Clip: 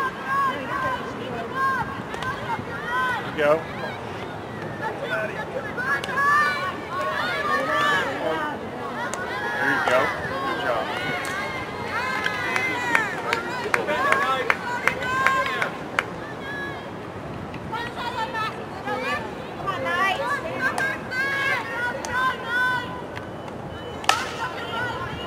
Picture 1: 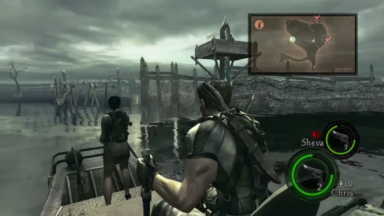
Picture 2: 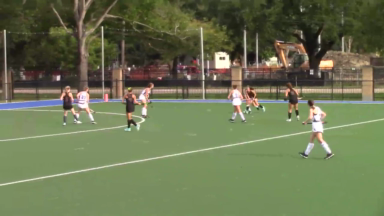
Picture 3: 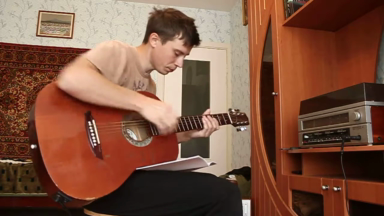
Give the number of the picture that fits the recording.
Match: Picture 2